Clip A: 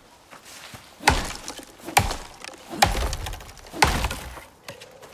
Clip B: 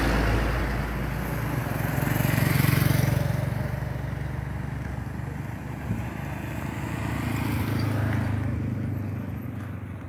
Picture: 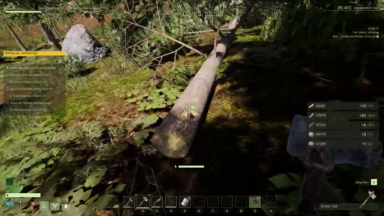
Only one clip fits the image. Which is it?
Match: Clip A